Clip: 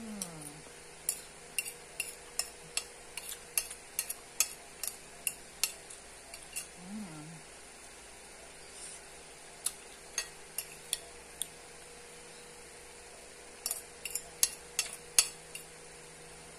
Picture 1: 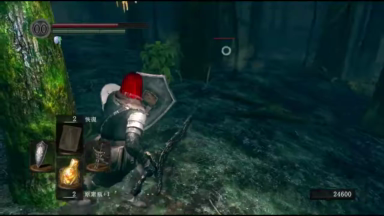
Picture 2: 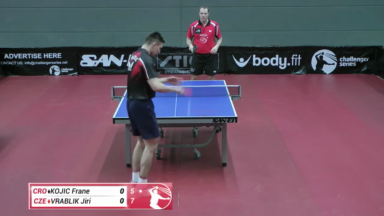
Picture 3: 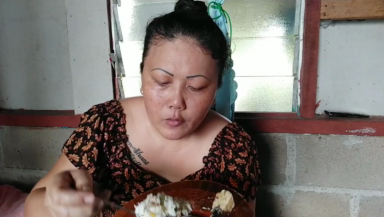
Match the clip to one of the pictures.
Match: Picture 3